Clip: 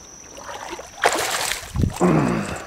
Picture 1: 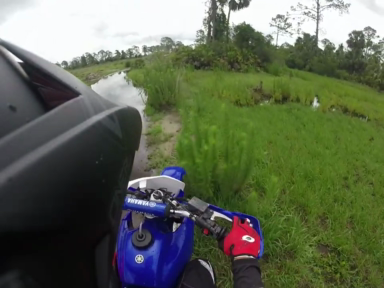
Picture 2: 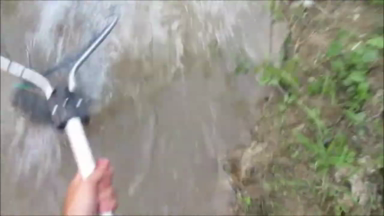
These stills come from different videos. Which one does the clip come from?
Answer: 2